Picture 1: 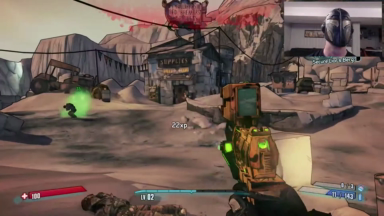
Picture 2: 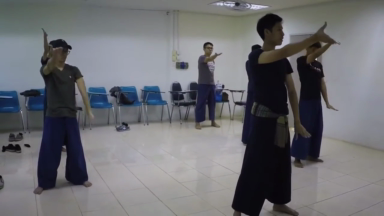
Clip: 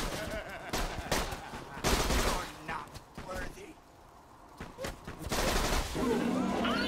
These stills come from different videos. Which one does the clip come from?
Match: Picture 1